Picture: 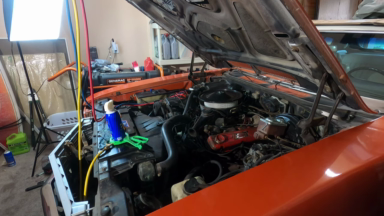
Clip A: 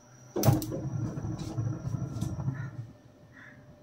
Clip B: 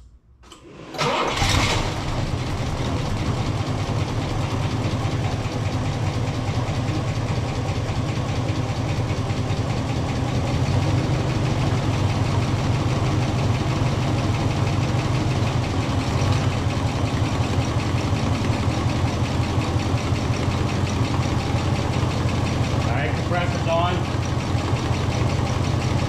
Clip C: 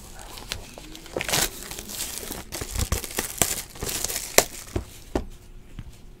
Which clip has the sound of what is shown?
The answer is B